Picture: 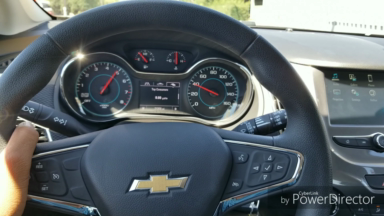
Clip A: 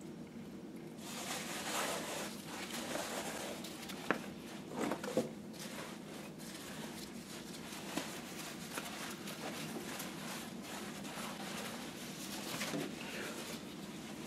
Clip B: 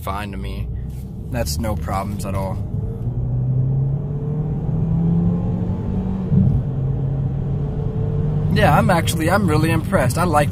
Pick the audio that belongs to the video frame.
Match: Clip B